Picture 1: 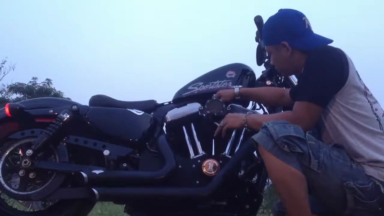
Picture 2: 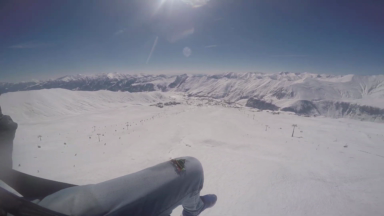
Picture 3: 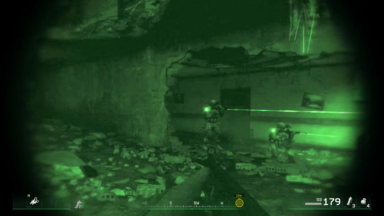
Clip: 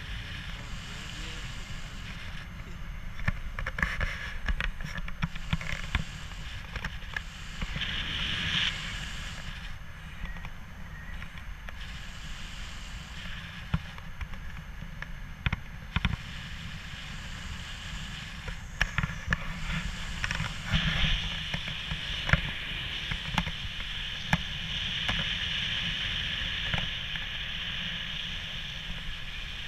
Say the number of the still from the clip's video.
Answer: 2